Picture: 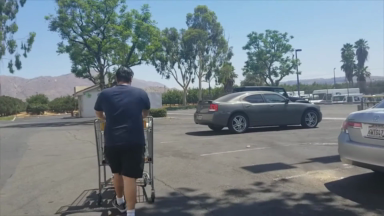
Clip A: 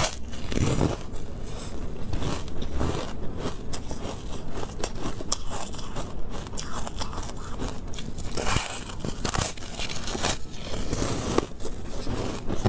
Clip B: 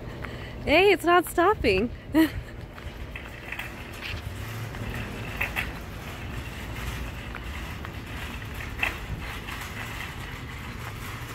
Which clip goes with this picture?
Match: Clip B